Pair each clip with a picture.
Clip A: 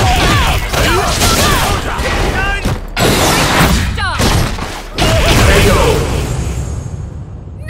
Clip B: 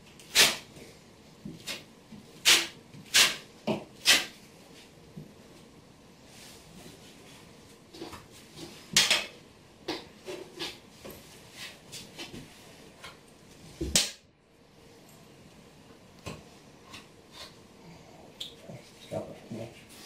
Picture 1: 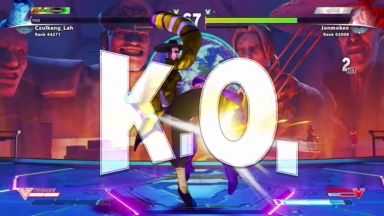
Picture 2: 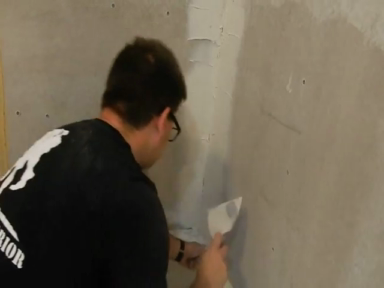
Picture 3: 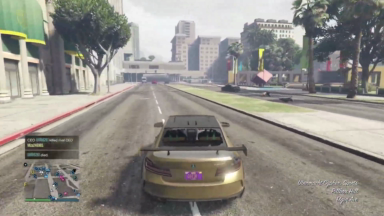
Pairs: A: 1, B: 2